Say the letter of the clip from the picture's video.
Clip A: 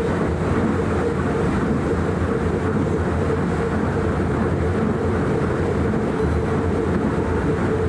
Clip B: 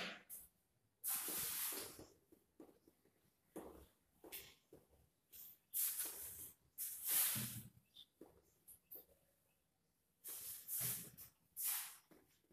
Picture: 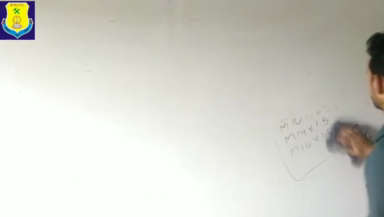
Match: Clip B